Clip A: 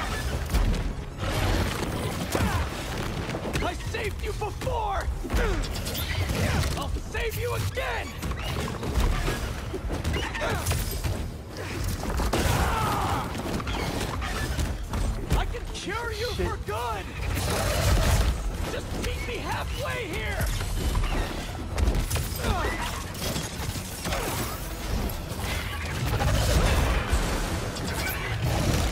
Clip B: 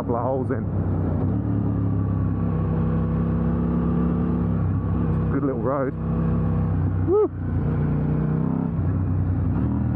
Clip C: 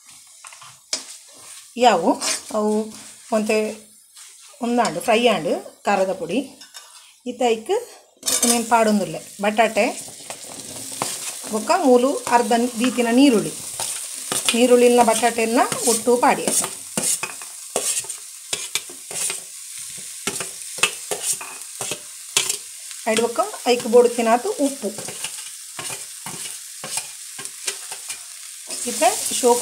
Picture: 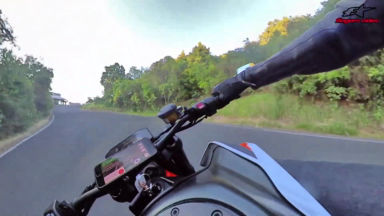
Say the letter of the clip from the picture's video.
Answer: B